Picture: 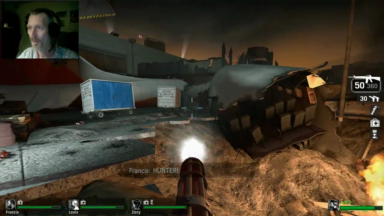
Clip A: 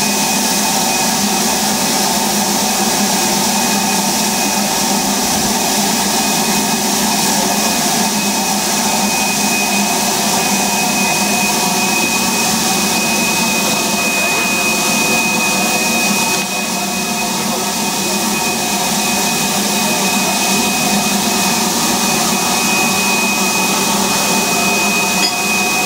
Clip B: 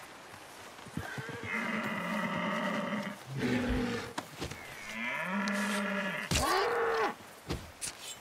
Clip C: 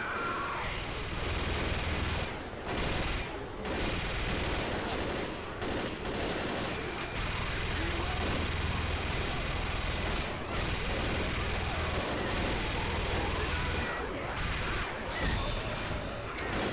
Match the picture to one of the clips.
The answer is C